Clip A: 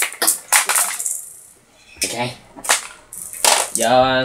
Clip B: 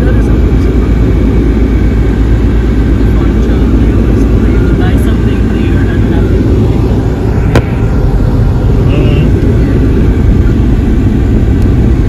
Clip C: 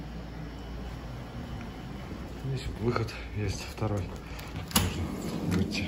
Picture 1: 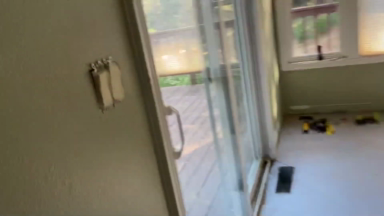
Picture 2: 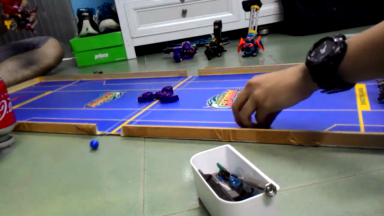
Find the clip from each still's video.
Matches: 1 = C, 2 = A